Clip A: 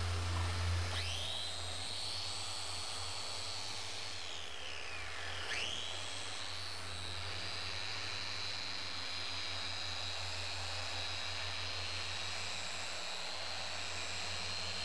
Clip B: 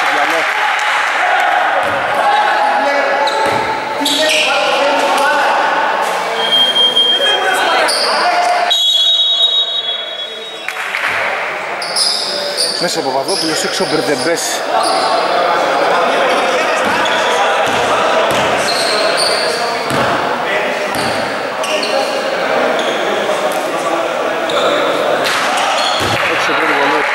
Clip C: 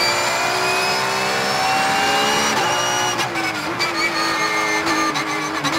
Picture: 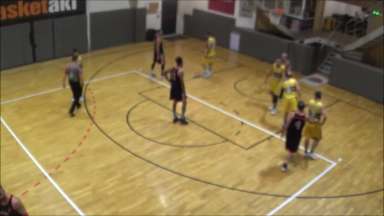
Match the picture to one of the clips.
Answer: B